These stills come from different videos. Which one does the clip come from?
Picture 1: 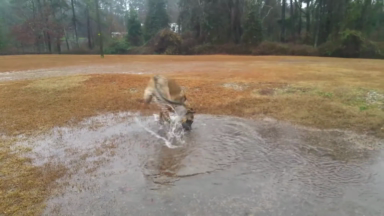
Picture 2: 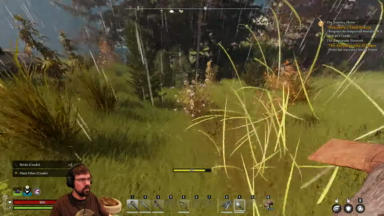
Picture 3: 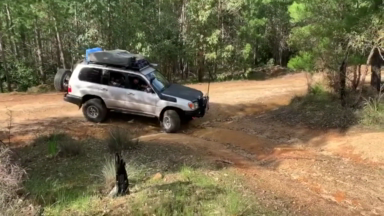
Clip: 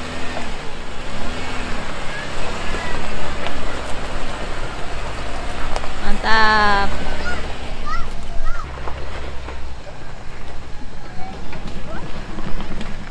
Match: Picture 3